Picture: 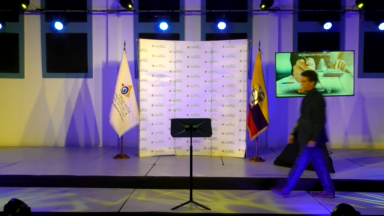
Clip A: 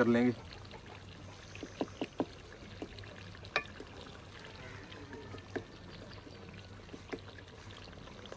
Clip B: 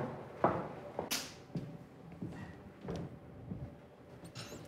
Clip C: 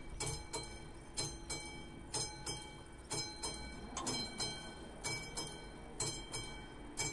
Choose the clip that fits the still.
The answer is B